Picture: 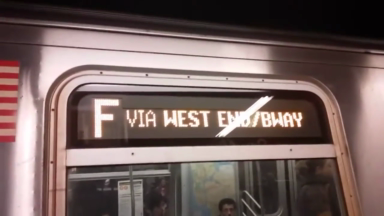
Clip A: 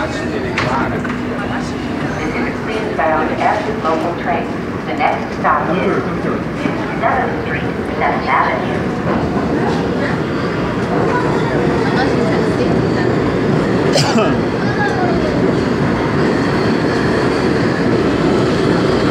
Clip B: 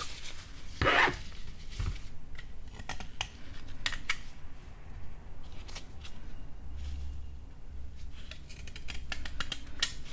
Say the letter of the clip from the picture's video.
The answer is A